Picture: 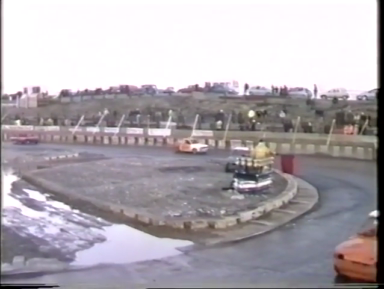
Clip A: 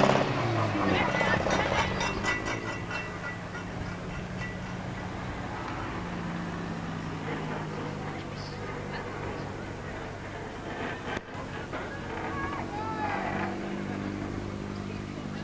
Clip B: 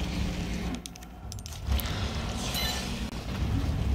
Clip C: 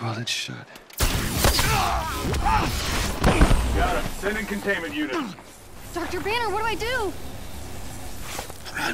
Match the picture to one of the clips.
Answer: A